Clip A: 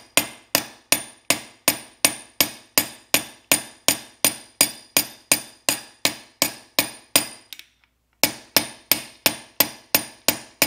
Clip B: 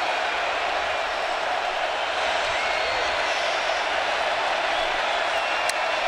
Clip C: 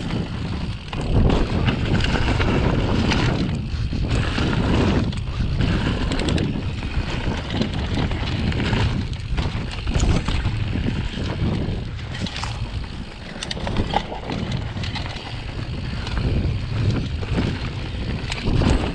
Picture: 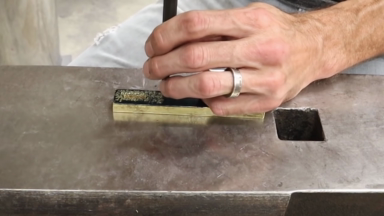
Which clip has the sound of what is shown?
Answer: A